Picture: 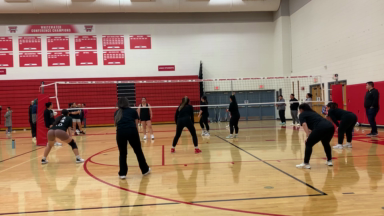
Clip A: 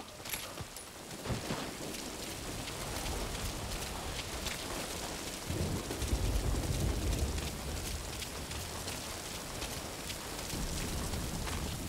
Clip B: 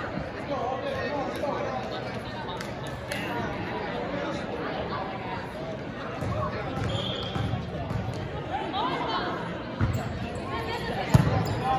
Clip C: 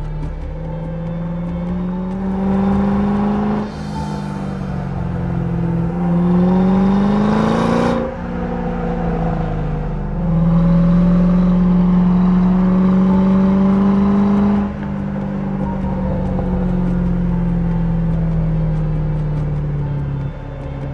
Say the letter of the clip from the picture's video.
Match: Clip B